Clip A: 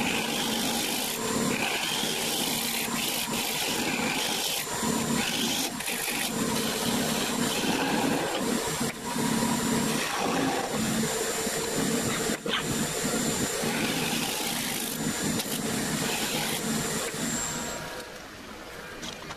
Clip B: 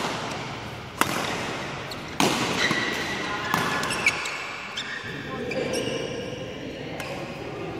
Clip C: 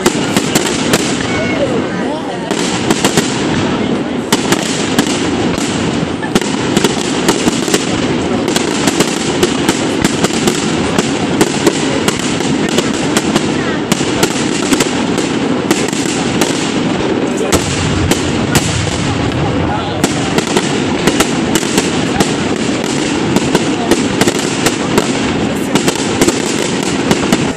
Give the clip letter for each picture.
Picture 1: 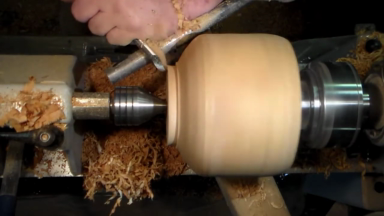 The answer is A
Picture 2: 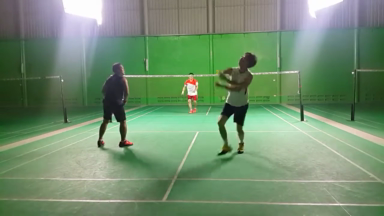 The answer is B